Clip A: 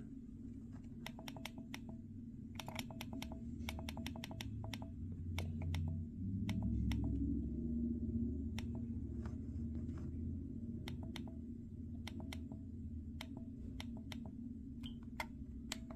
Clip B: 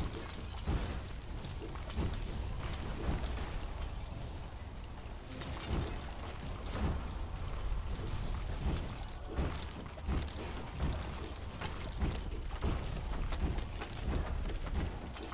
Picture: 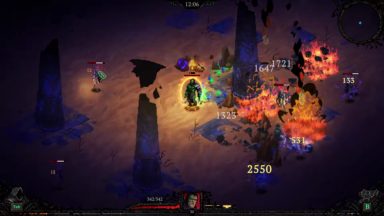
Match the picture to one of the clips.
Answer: B